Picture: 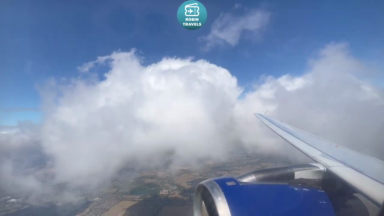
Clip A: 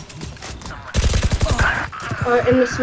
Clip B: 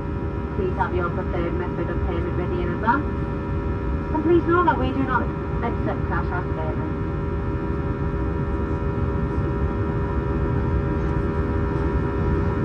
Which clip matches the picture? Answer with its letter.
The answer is B